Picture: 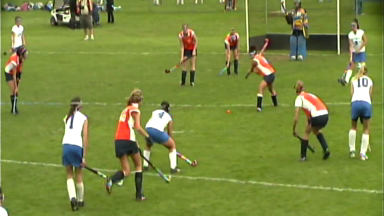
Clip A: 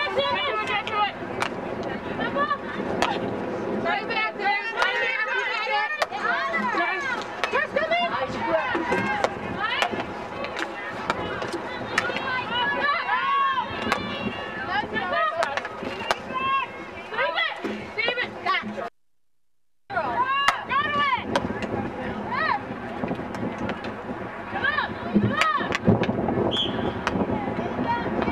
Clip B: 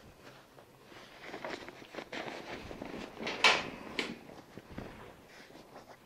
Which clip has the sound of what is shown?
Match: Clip A